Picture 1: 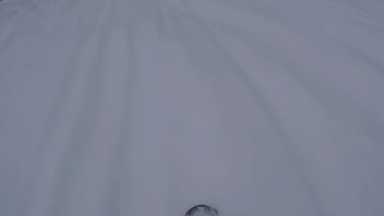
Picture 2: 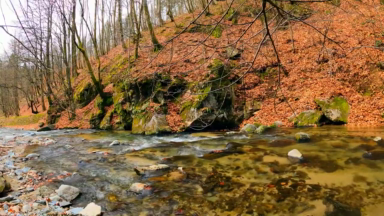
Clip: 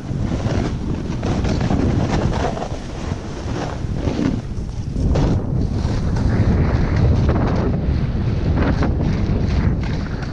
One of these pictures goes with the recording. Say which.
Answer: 1